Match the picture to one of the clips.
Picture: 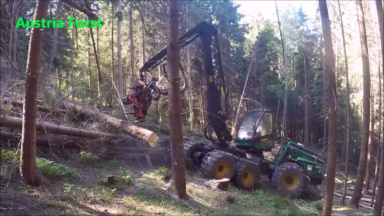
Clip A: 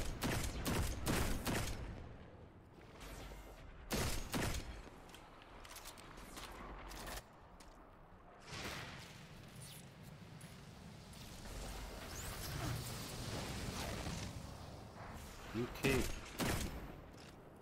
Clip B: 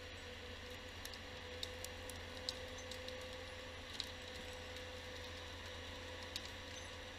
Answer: B